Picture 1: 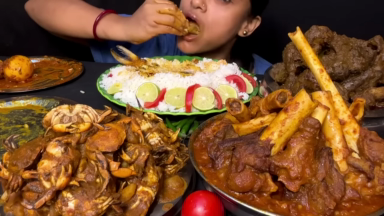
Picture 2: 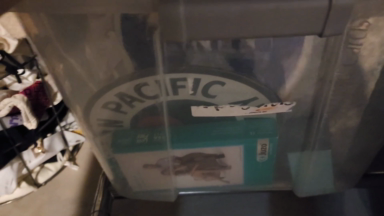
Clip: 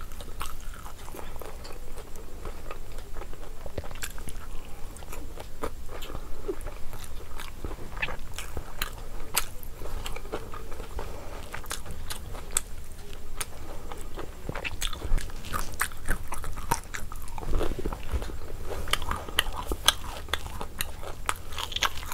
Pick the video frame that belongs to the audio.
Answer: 1